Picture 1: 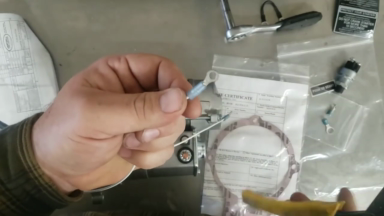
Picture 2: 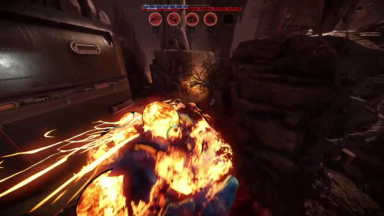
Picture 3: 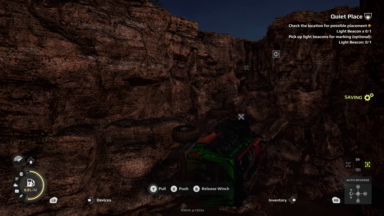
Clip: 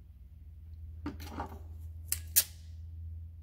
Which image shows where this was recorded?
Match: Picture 1